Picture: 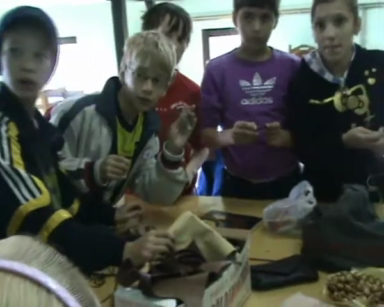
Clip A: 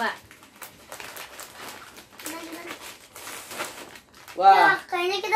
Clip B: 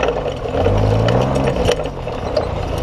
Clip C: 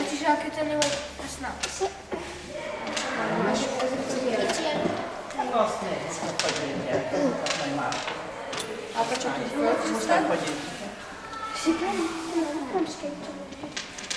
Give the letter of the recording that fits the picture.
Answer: C